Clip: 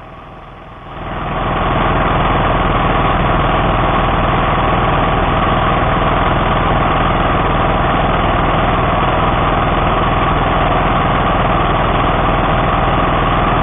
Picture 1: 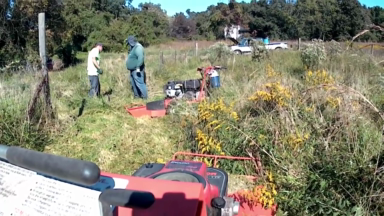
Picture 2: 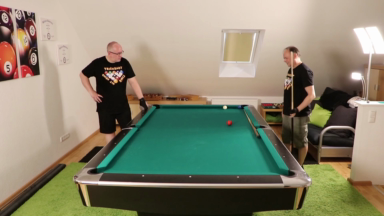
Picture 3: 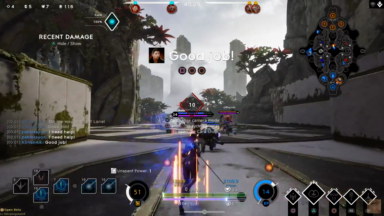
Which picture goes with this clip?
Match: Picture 1